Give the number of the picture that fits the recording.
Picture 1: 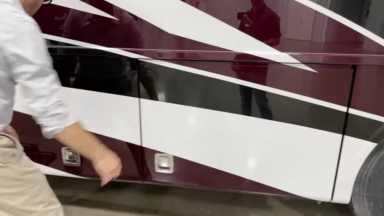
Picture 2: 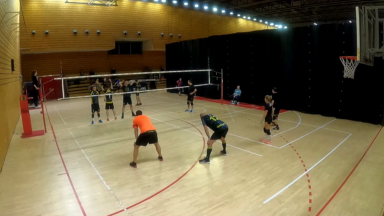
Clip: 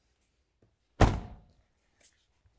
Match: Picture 1